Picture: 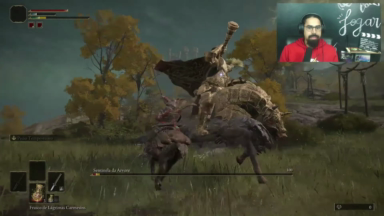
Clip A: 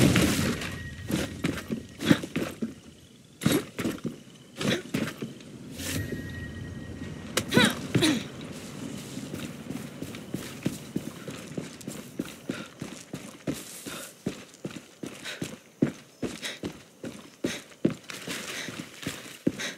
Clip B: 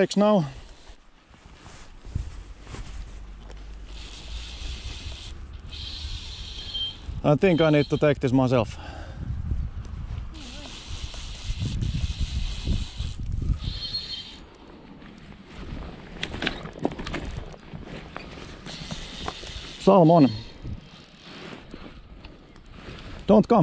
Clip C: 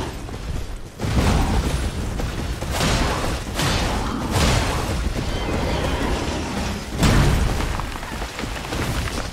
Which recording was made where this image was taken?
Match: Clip C